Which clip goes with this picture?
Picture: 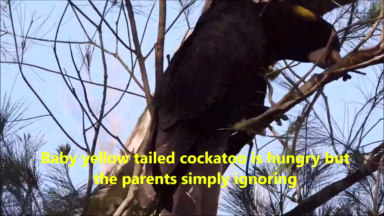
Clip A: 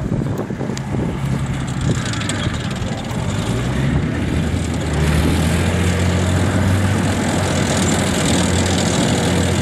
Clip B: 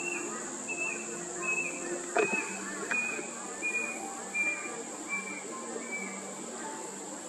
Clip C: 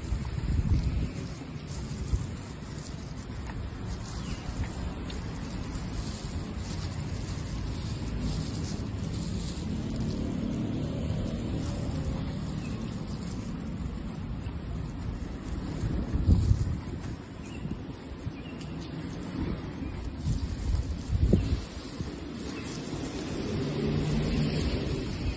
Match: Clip B